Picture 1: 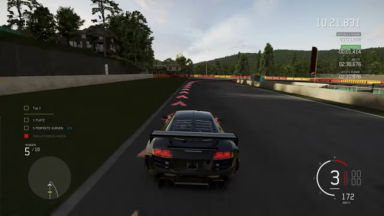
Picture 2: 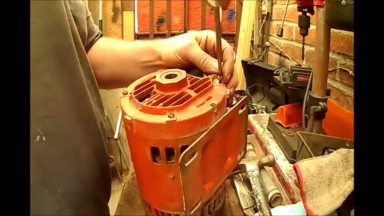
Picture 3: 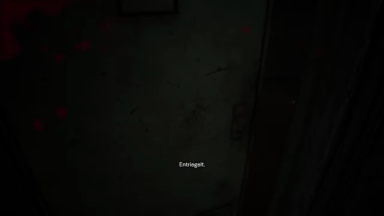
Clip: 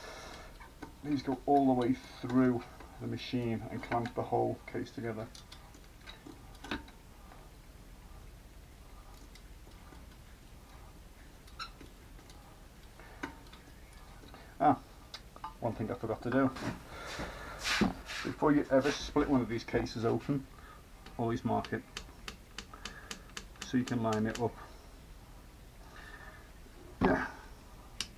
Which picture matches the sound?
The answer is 2